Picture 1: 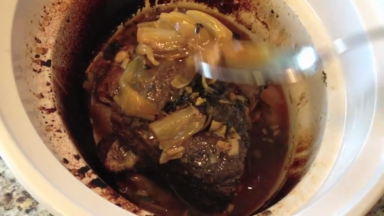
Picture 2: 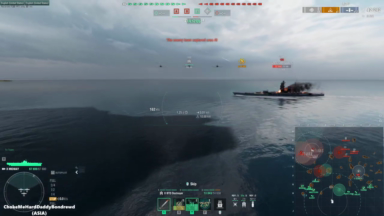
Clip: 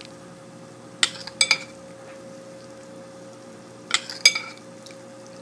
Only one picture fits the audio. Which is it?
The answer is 1